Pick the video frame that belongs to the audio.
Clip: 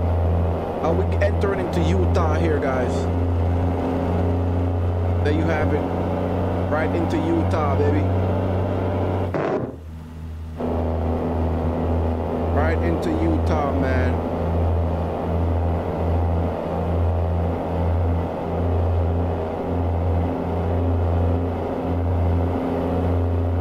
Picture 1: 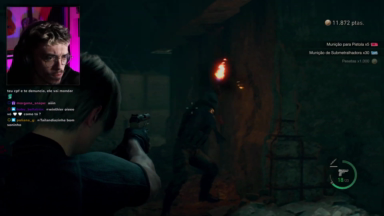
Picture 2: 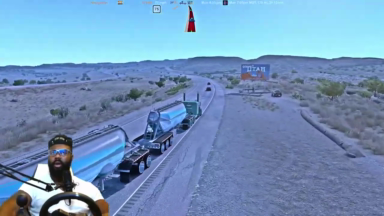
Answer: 2